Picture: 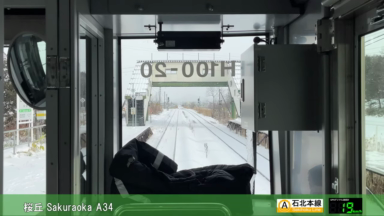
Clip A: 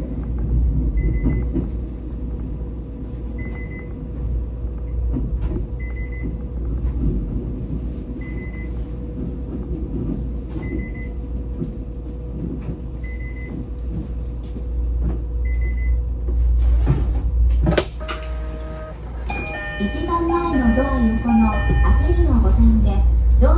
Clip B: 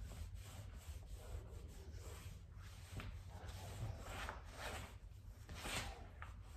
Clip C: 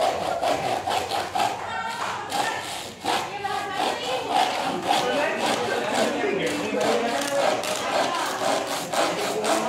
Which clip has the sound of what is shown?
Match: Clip A